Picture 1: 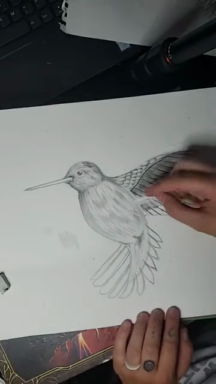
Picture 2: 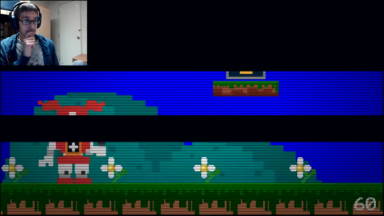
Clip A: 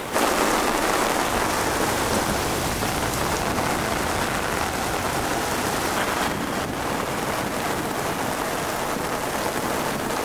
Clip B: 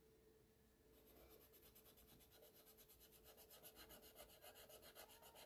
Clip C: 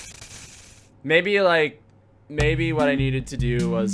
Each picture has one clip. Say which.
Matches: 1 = B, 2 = C